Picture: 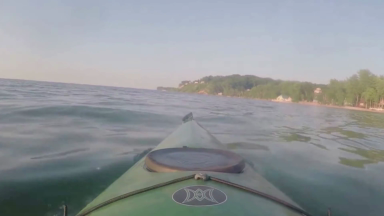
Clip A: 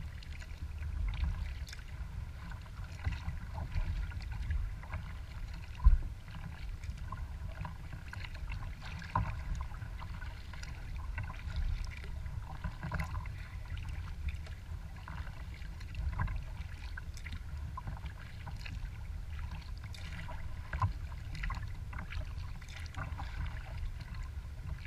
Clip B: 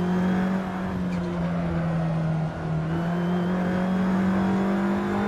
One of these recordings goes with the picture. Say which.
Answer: A